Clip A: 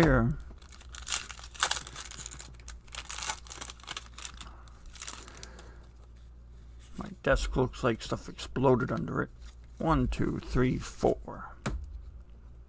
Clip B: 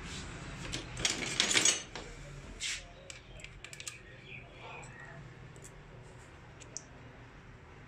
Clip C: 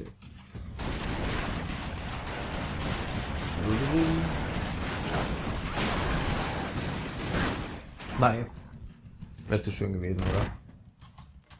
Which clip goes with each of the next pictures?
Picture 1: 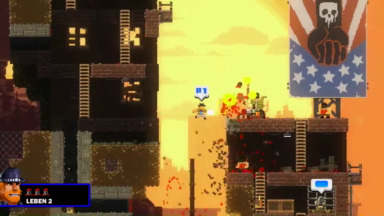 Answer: C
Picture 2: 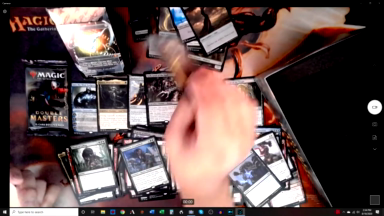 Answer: A